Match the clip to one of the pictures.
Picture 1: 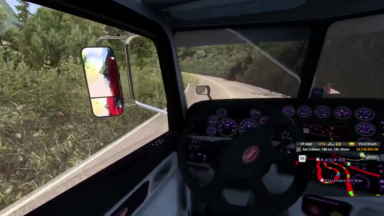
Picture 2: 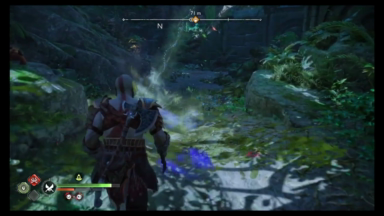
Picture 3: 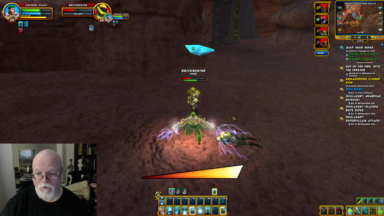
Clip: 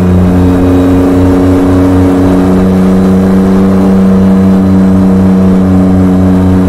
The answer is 1